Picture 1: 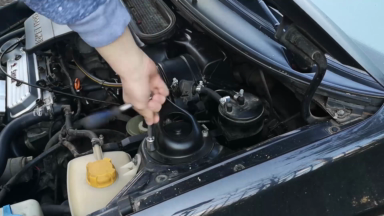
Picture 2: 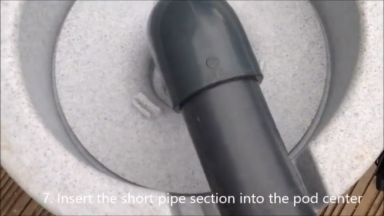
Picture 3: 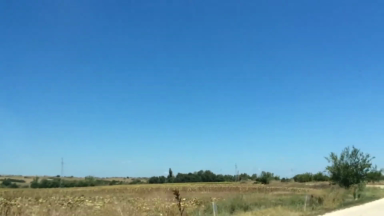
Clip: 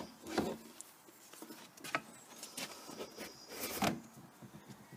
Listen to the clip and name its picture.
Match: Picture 2